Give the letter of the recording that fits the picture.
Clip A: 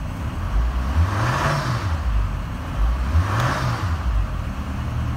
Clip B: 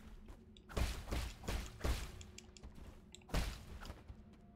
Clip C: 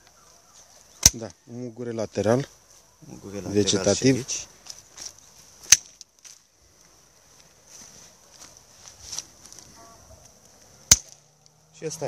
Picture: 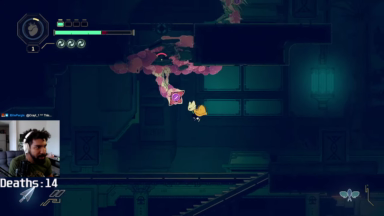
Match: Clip B